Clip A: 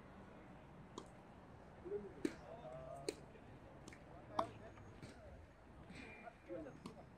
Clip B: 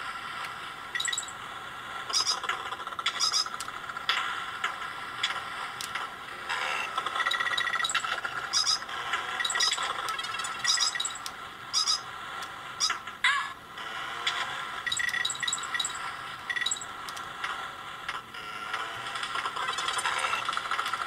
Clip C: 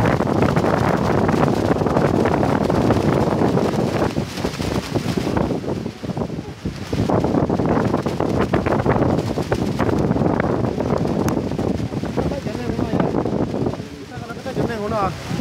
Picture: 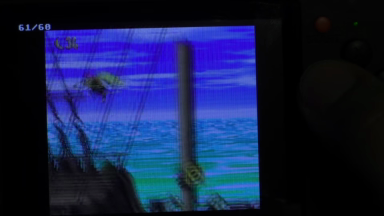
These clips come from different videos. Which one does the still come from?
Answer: B